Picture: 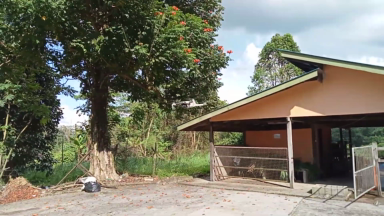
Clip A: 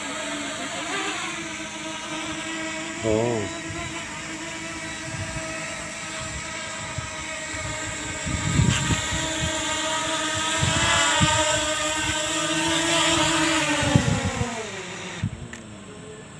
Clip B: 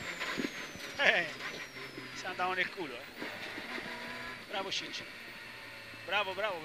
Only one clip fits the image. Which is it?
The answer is A